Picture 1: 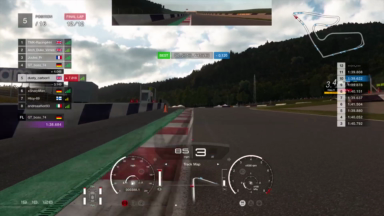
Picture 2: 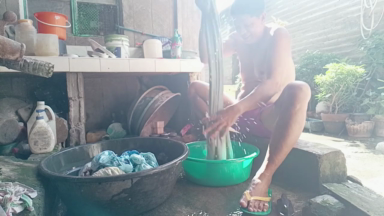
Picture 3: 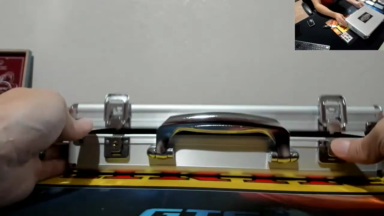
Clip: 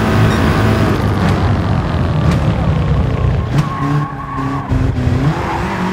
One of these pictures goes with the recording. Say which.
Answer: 1